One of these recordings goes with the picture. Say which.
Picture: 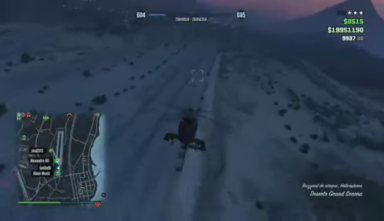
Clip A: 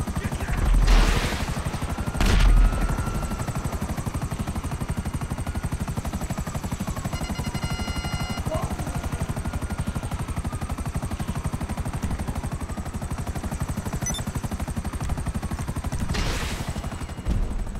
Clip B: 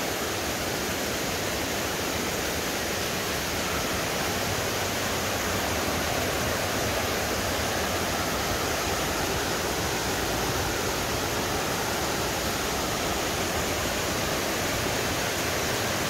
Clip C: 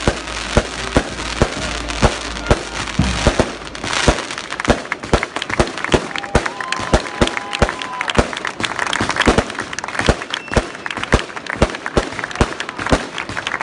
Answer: A